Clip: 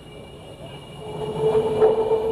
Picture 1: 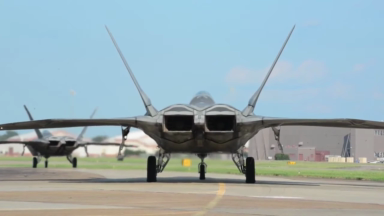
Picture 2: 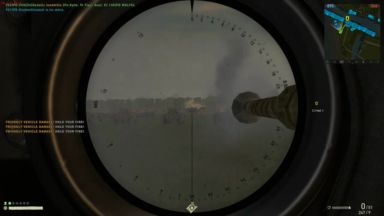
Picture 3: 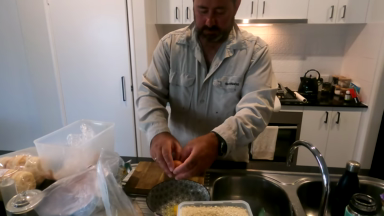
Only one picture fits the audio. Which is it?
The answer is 1